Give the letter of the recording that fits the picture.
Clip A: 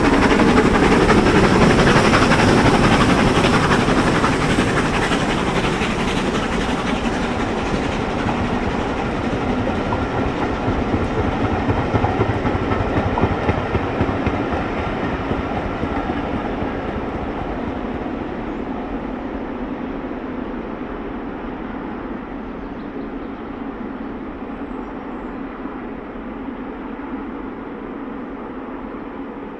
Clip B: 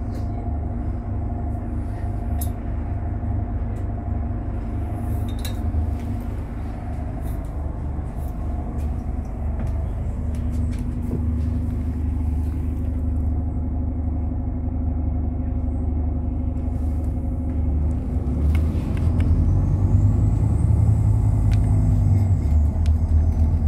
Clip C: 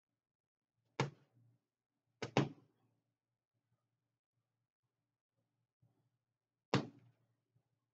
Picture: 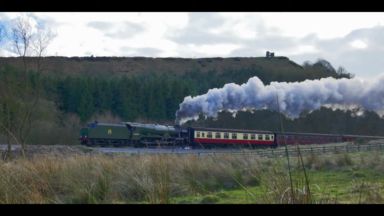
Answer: A